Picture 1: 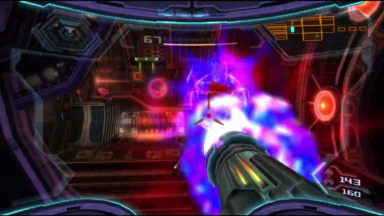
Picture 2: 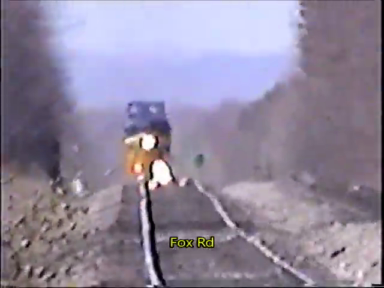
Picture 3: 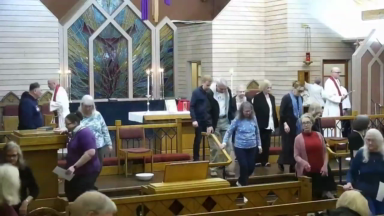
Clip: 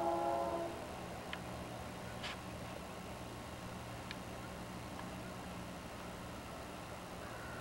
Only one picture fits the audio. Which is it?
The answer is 2